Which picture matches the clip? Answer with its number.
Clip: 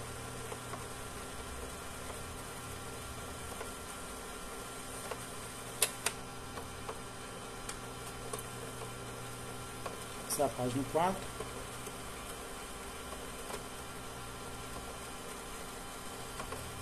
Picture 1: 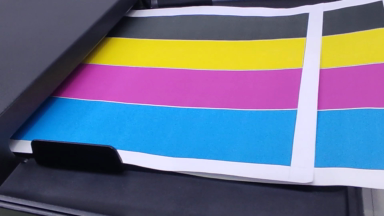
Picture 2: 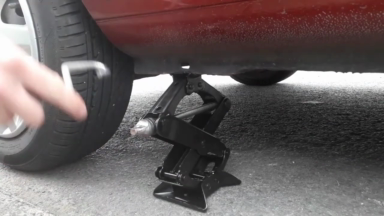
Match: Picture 1